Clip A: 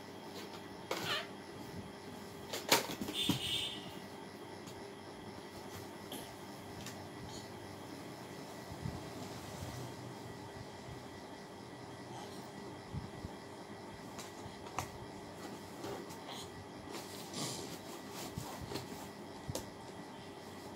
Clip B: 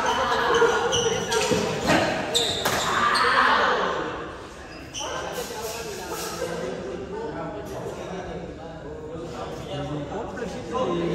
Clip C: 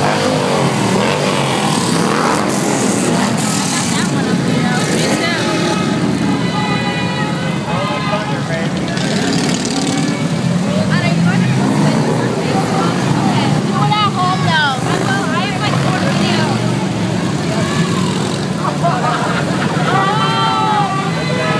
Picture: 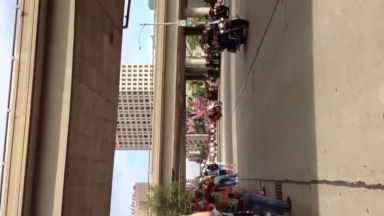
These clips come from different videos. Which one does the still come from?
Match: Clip C